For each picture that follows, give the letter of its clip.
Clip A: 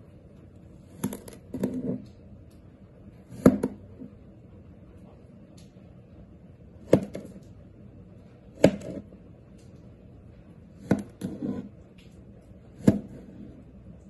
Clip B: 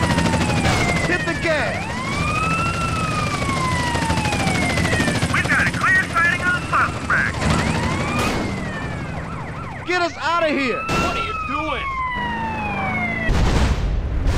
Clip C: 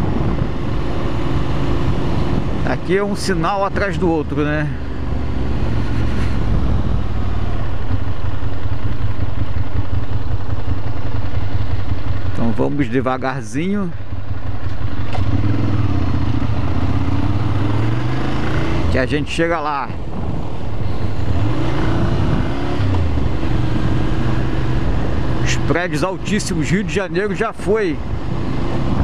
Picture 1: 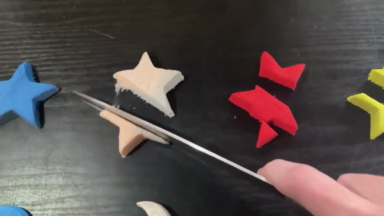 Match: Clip A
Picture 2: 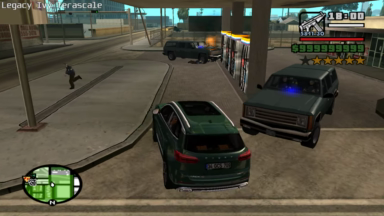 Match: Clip B